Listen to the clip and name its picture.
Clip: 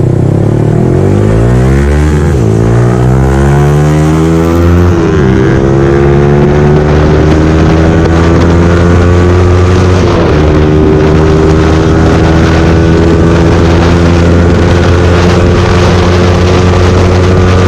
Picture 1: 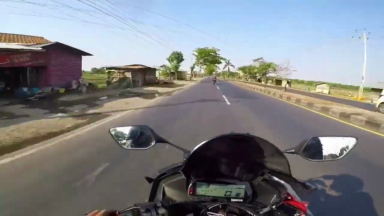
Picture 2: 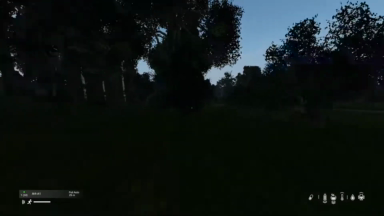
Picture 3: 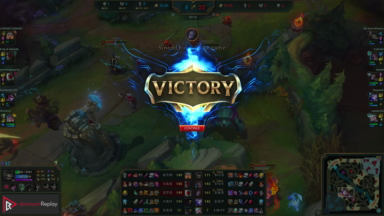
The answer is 1